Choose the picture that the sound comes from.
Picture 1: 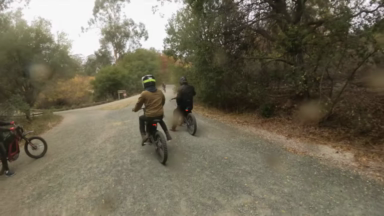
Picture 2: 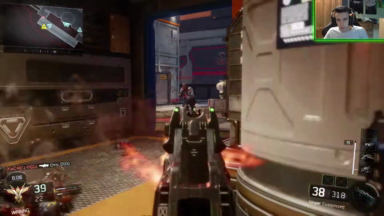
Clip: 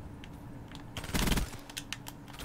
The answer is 2